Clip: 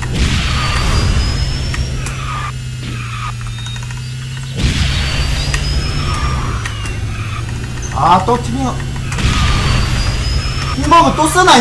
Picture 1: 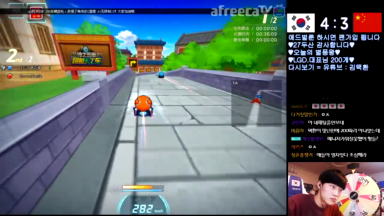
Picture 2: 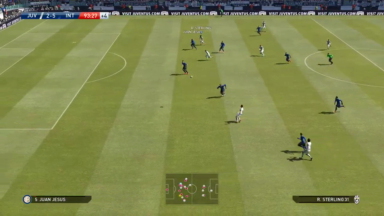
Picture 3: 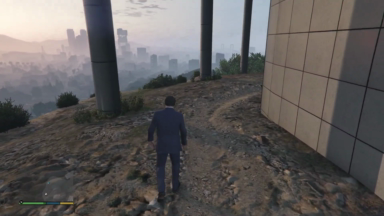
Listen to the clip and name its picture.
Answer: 1